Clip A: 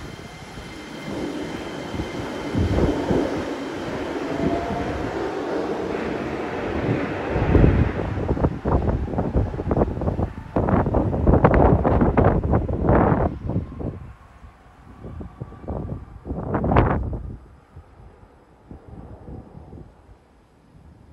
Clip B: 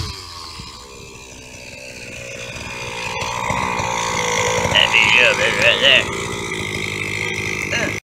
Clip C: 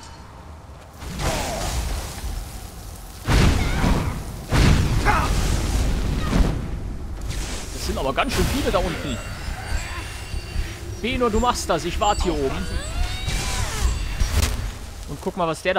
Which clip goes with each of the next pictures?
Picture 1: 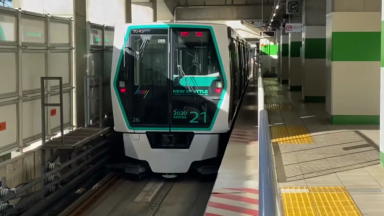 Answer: A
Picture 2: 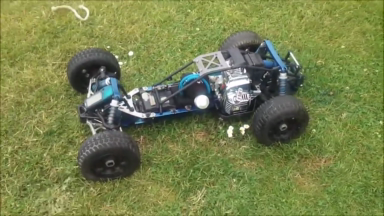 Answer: B